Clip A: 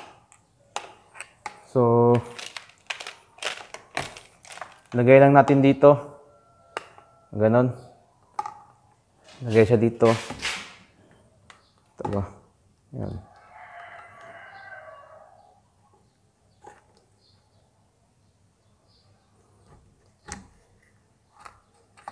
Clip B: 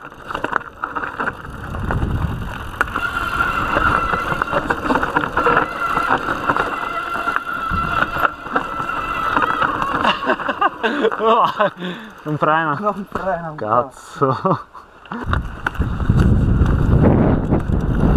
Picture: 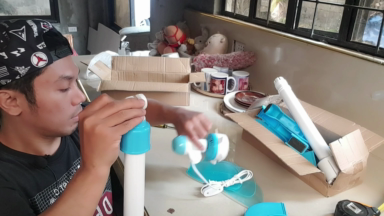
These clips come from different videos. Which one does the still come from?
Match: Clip A